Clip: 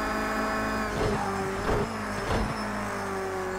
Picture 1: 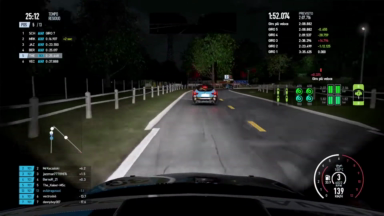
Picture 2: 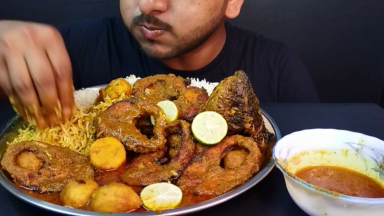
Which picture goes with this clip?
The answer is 1